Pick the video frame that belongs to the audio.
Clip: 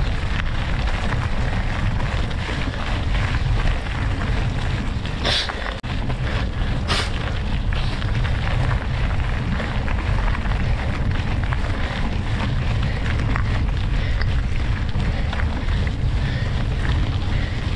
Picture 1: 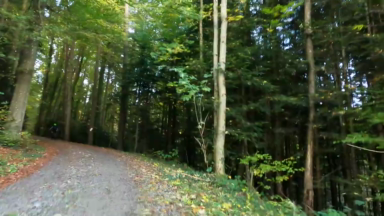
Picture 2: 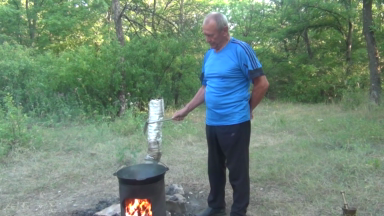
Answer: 1